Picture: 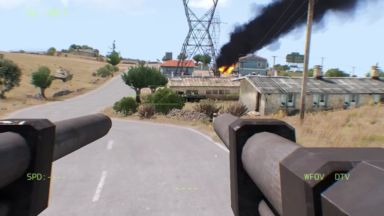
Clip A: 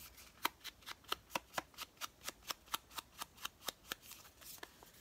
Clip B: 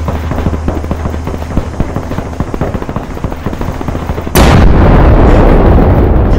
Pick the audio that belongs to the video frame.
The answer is B